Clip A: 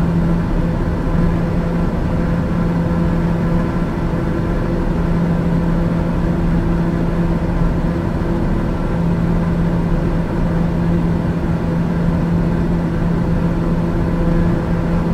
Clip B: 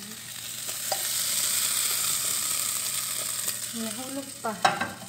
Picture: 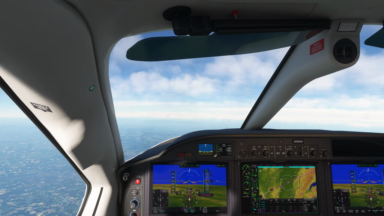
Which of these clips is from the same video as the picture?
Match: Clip A